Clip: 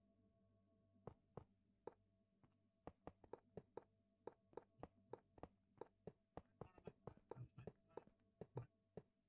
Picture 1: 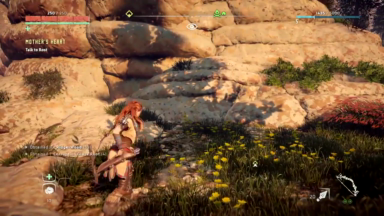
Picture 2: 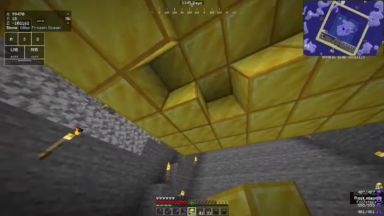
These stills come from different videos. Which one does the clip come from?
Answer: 2